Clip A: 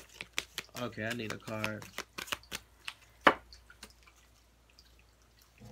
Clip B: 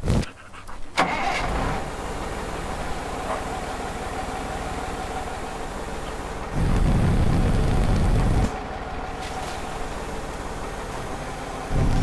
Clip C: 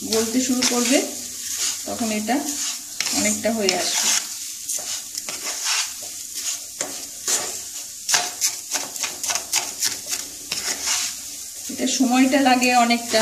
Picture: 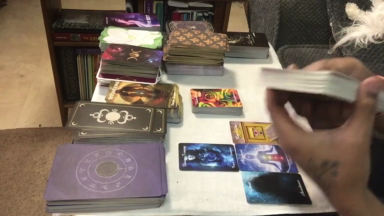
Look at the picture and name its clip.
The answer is A